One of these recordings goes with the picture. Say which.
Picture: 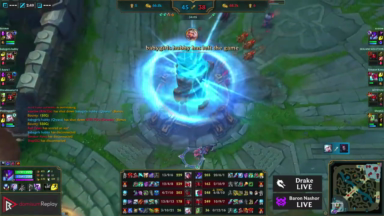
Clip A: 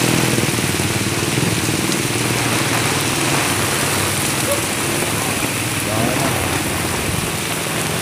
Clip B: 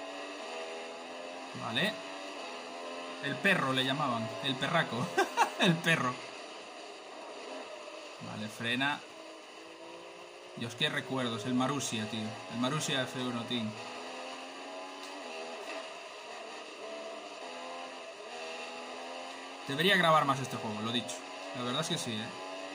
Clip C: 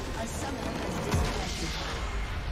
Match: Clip C